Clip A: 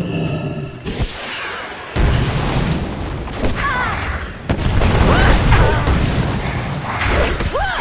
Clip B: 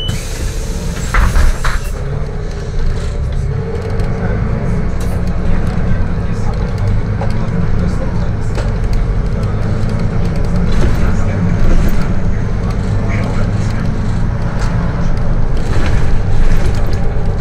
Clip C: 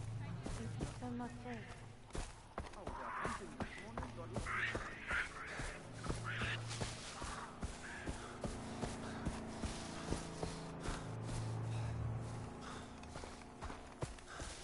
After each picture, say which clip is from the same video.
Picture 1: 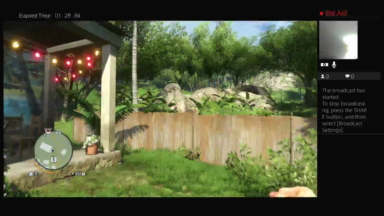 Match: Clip C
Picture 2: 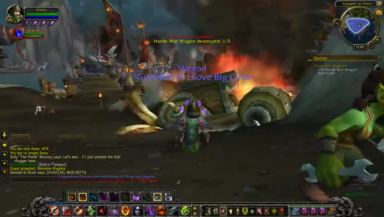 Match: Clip A